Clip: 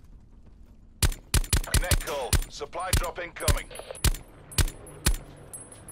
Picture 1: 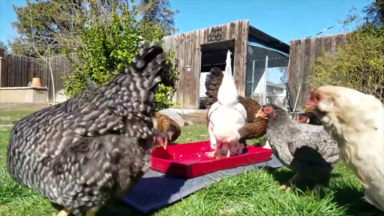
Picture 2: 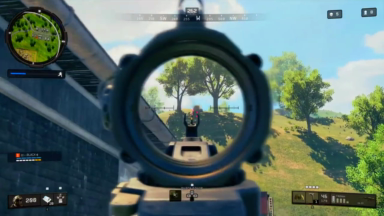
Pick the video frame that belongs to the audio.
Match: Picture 2